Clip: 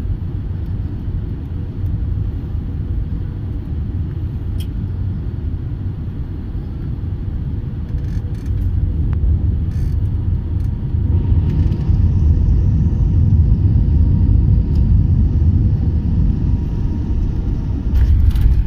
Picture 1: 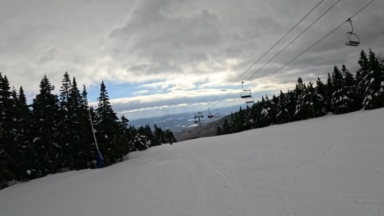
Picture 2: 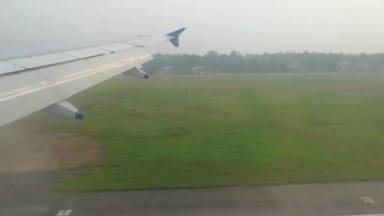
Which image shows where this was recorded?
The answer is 2